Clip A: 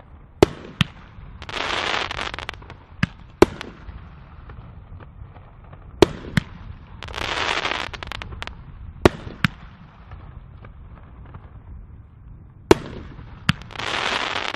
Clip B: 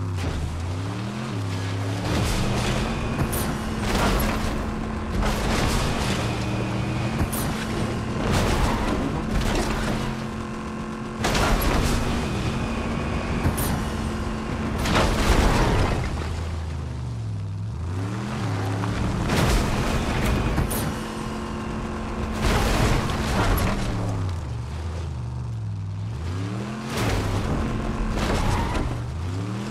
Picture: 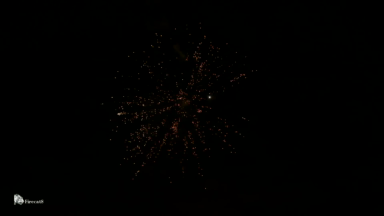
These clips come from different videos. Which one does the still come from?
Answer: A